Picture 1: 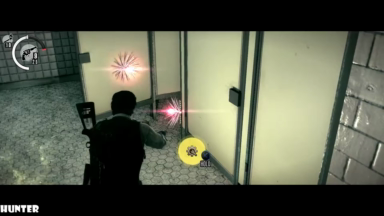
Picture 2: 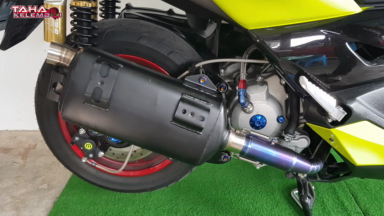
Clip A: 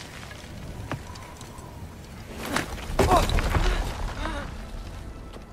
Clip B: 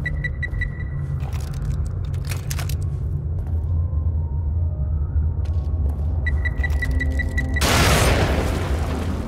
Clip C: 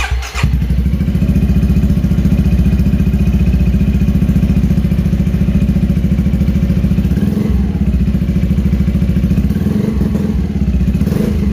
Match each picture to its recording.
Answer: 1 B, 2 C